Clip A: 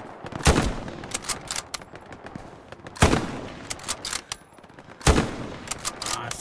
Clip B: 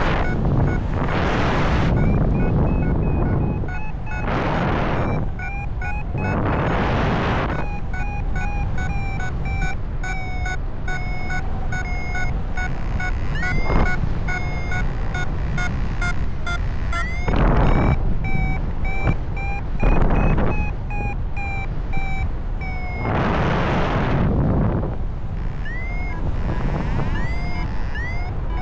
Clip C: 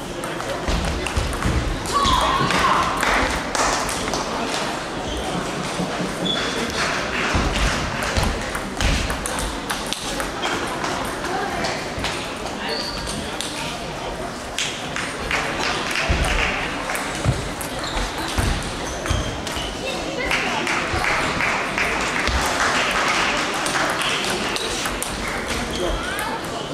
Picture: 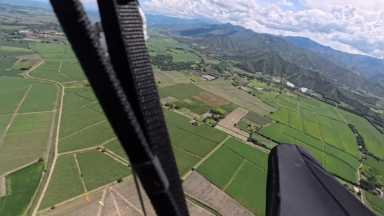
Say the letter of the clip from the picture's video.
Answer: B